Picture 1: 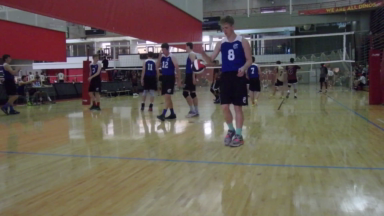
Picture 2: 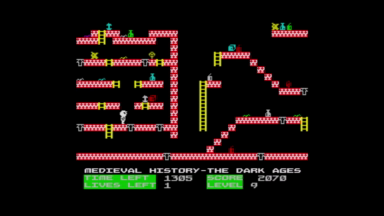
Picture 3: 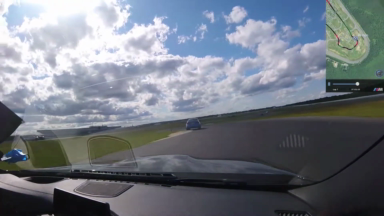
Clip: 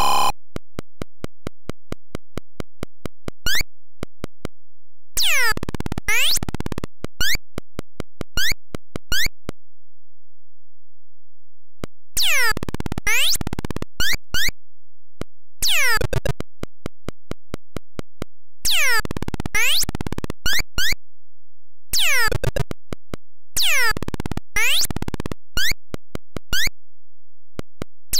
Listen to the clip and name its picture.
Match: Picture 2